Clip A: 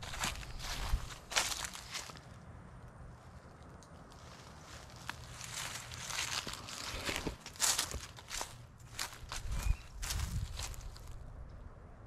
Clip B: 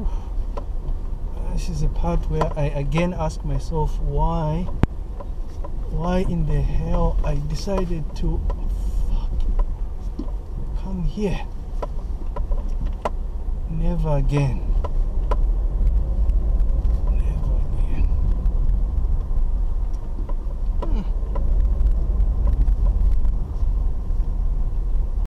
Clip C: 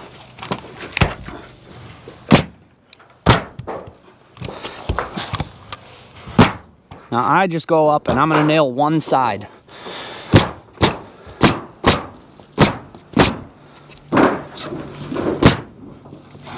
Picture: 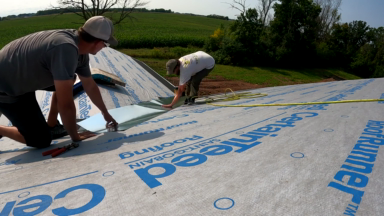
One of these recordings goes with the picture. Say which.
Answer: C